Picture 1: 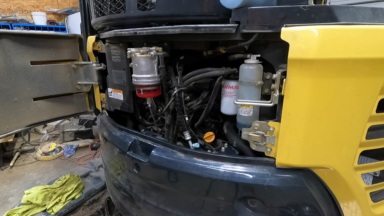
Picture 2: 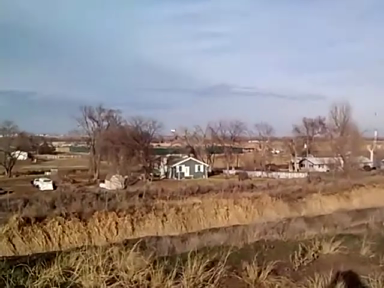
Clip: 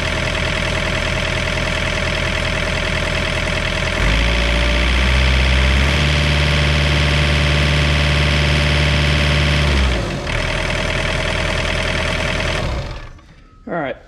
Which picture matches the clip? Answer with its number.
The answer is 1